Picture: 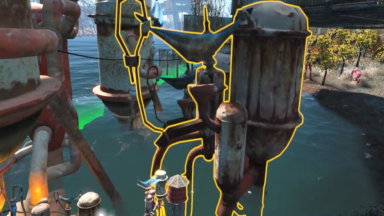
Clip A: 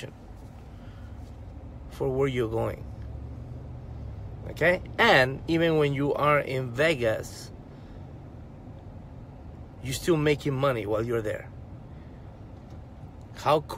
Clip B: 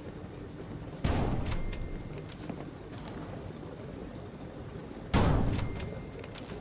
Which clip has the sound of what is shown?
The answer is B